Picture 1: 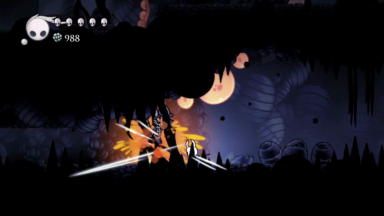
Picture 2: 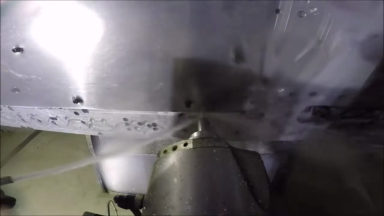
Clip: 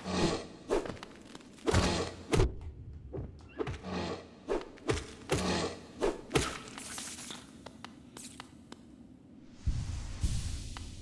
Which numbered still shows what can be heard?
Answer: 1